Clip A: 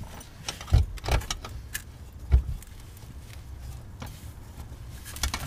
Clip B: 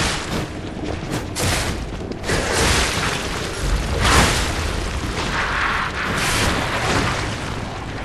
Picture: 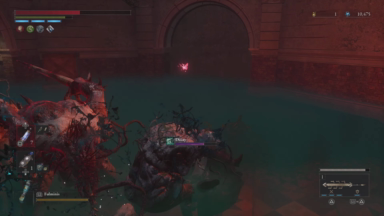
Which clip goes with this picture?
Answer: B